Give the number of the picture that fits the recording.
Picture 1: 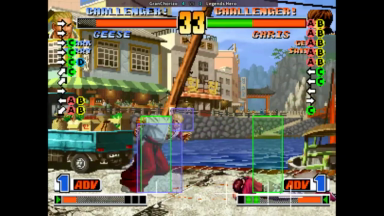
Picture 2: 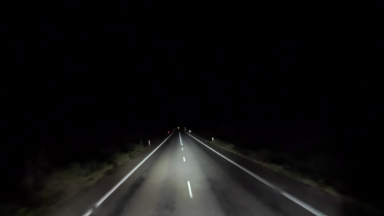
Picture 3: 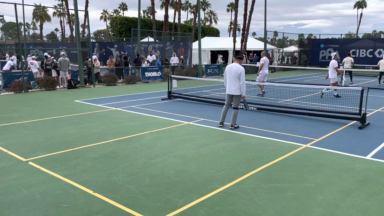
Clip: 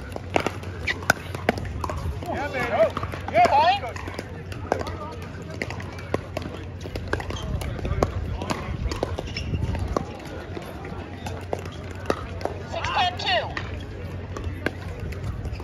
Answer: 3